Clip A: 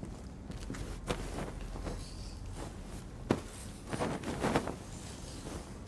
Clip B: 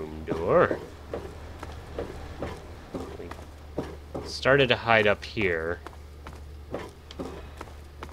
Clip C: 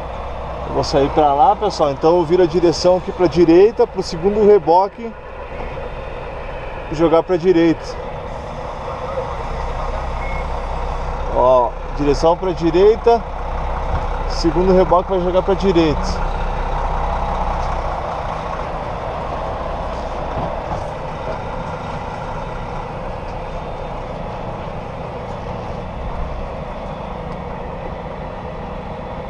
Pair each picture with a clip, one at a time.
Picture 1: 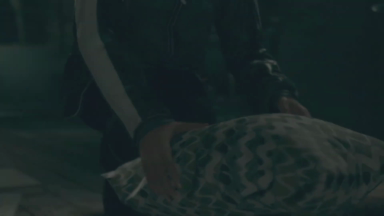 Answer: A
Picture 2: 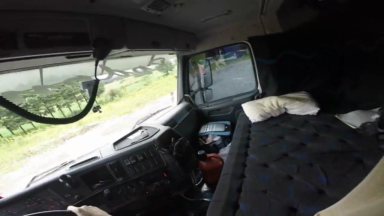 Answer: C